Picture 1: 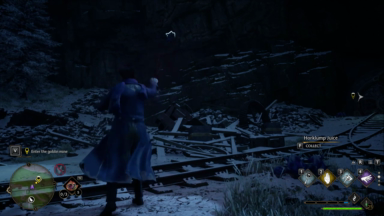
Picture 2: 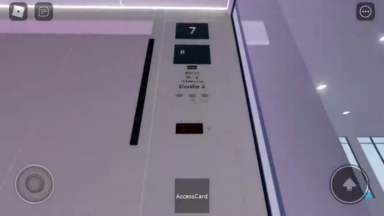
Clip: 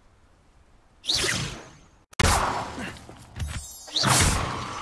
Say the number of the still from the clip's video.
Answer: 1